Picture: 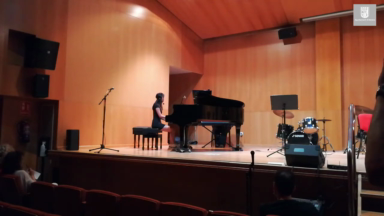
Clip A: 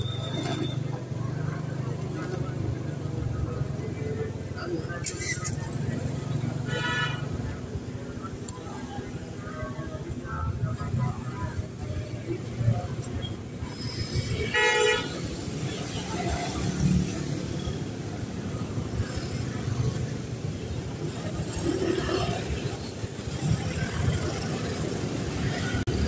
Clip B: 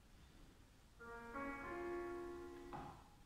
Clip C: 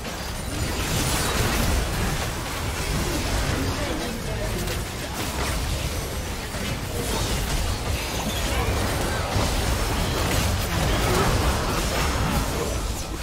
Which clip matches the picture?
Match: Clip B